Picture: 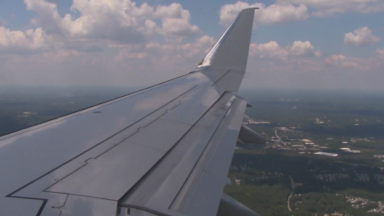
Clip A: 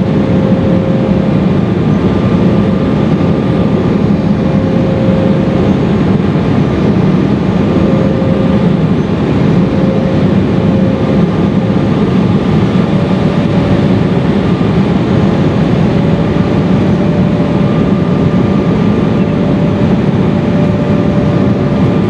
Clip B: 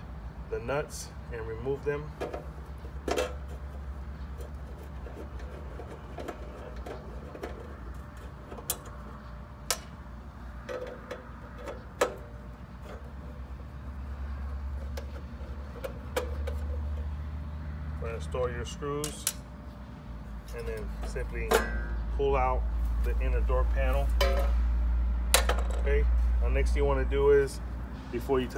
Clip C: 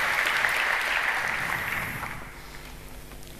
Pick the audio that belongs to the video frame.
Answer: A